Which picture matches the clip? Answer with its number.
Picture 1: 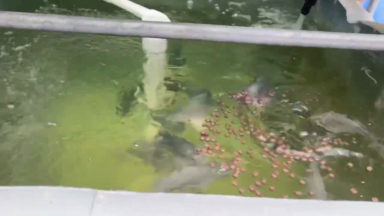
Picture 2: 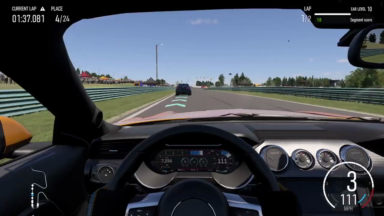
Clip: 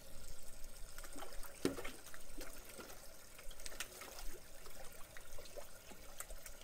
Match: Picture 1